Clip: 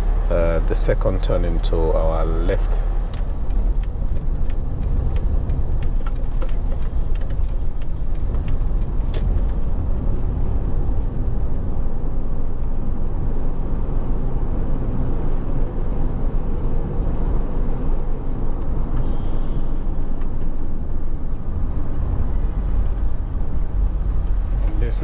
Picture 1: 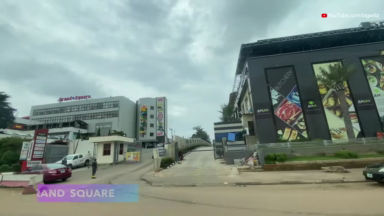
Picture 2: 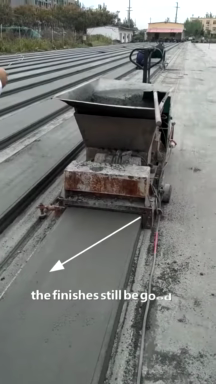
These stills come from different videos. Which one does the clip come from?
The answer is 1